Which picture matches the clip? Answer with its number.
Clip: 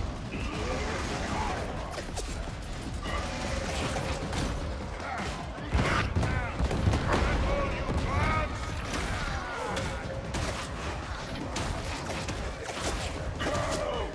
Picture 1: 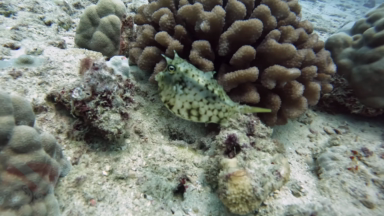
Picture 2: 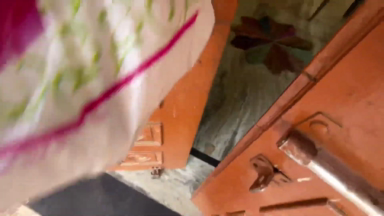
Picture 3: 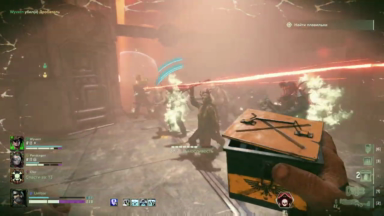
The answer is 3